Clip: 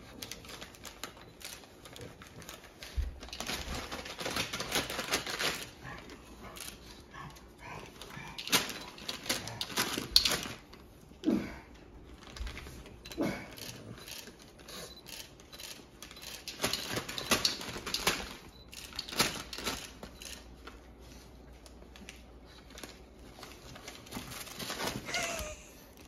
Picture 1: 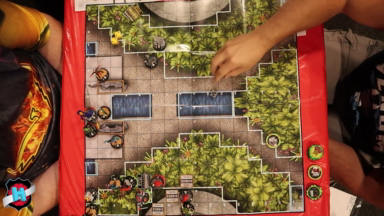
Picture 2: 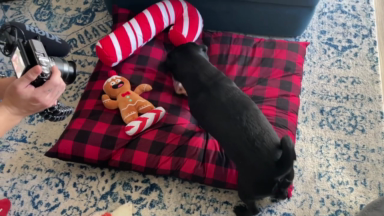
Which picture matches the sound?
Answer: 2